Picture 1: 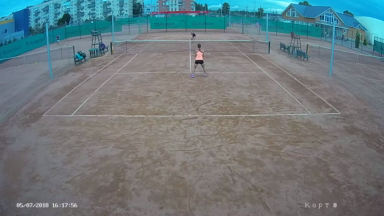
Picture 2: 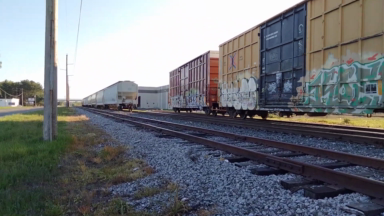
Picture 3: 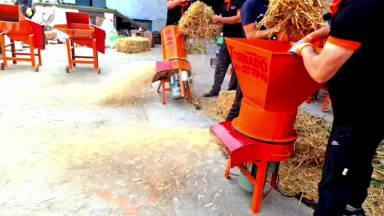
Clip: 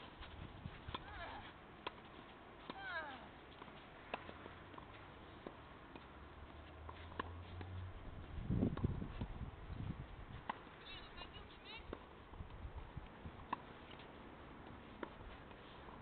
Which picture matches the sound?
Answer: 1